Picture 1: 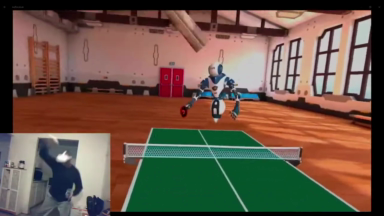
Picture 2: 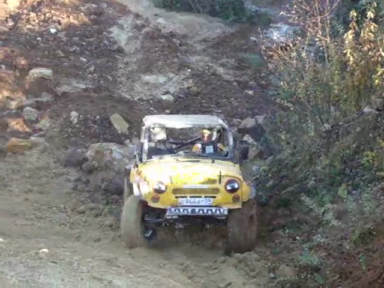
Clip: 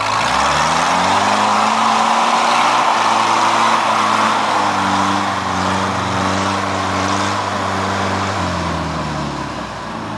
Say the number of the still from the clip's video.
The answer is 2